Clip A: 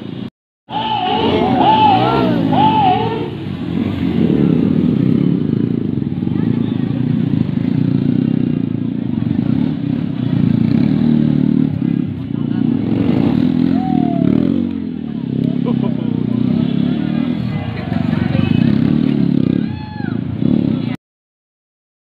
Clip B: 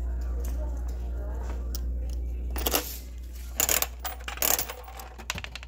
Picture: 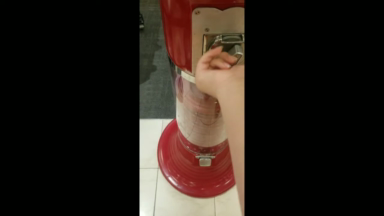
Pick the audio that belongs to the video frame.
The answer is B